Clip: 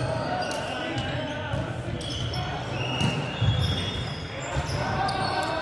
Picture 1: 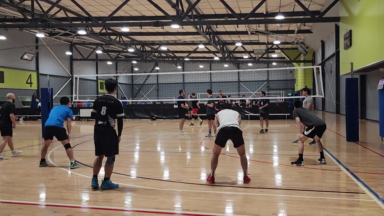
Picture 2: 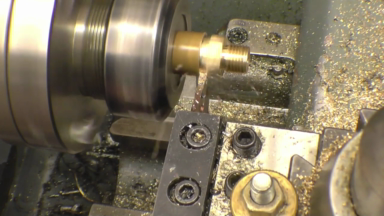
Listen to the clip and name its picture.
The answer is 1